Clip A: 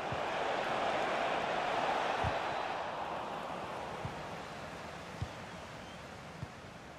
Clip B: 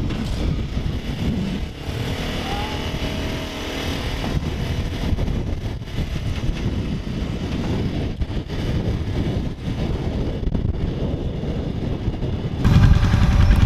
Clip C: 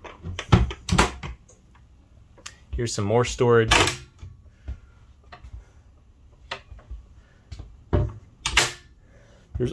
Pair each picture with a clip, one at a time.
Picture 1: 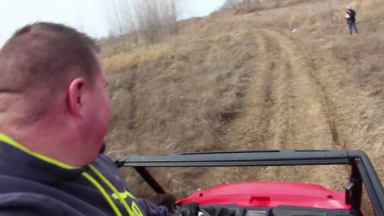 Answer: B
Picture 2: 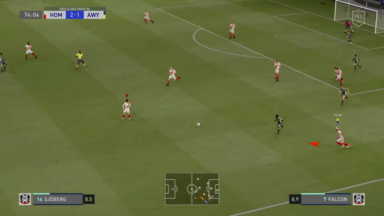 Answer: A